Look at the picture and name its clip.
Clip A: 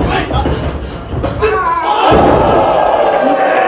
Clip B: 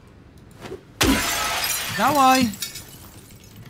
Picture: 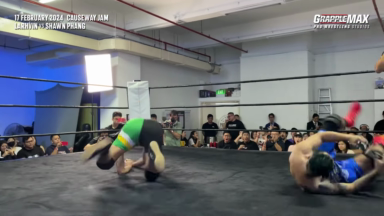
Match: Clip A